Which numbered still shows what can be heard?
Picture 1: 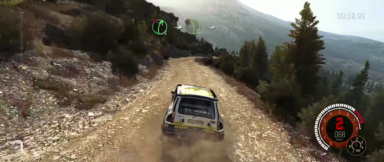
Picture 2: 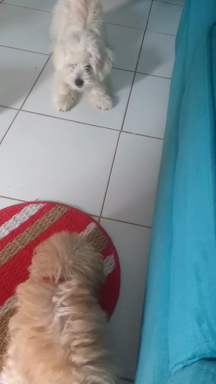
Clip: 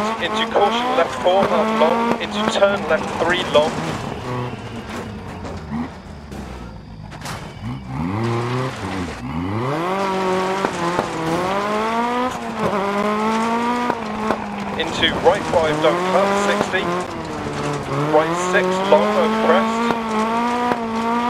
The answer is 1